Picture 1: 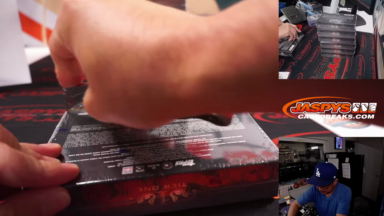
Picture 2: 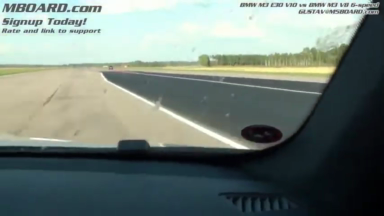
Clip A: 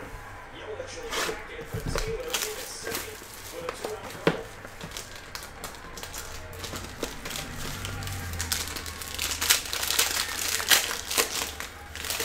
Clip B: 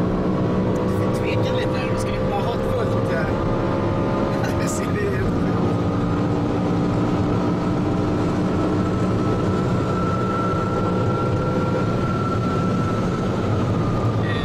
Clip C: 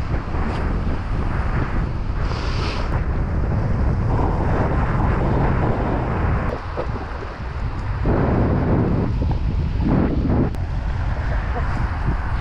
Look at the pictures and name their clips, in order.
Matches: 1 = A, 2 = B